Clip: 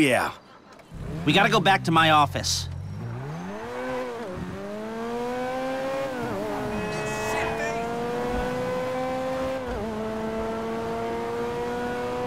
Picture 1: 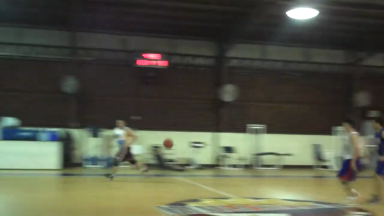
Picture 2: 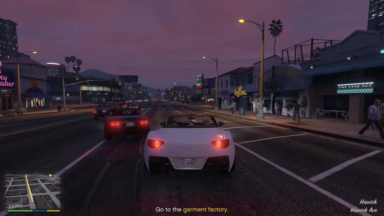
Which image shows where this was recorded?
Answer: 2